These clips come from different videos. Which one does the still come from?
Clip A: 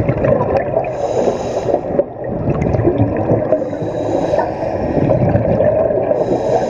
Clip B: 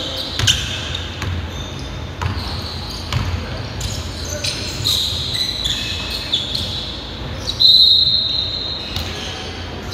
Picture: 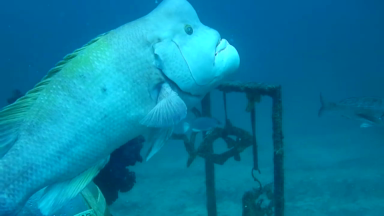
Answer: A